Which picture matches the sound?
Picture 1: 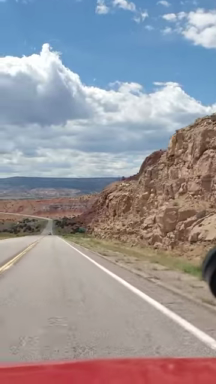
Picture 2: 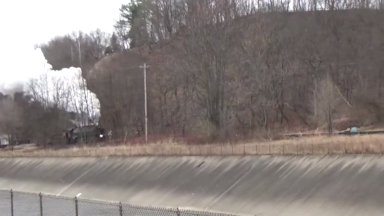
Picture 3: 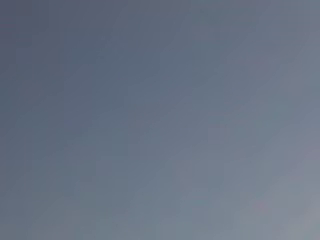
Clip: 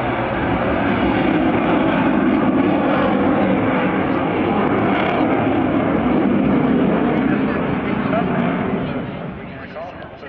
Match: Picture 3